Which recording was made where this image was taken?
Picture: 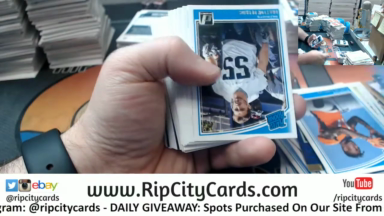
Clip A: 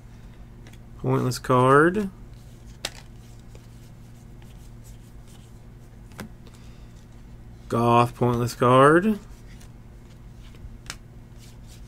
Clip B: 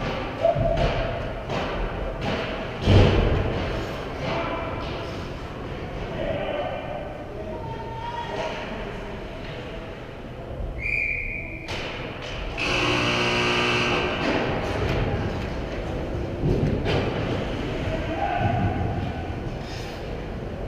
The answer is A